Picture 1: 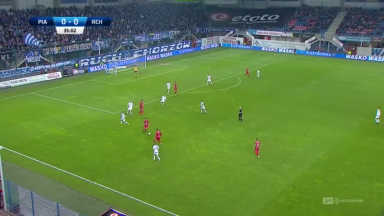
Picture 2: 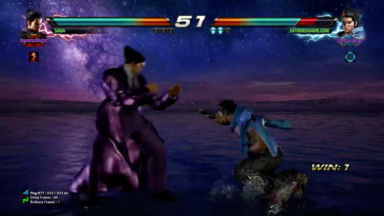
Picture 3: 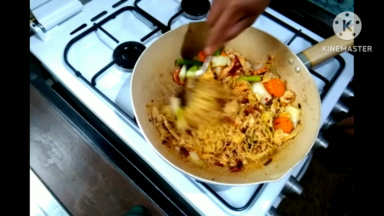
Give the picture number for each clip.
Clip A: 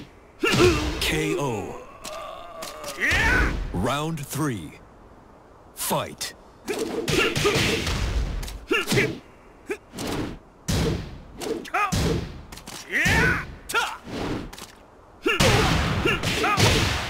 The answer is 2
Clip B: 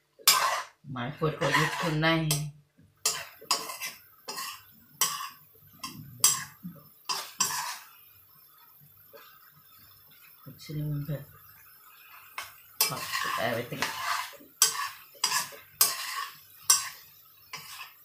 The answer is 3